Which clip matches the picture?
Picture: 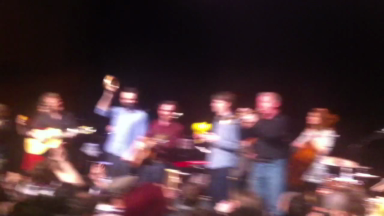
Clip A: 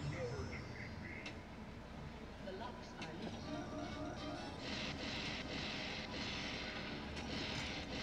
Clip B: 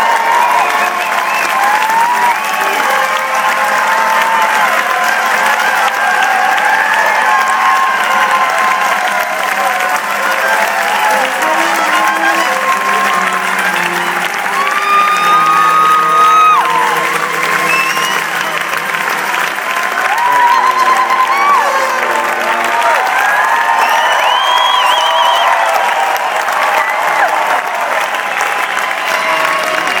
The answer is B